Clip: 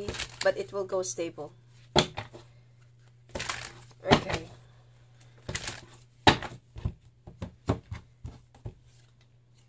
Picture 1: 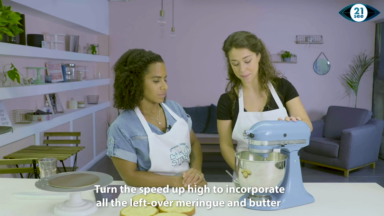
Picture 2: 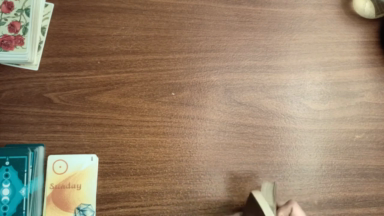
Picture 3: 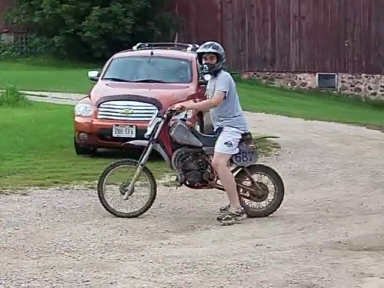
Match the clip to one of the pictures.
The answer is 2